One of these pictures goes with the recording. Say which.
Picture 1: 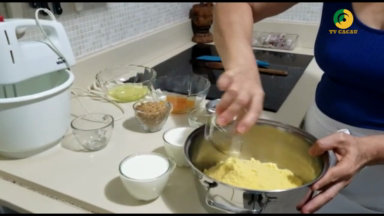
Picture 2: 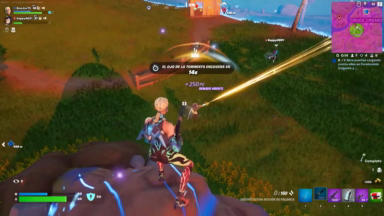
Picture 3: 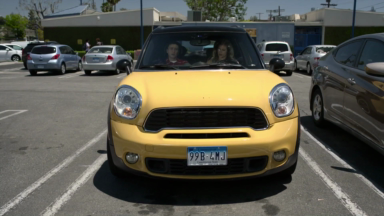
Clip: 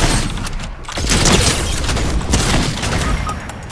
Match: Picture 2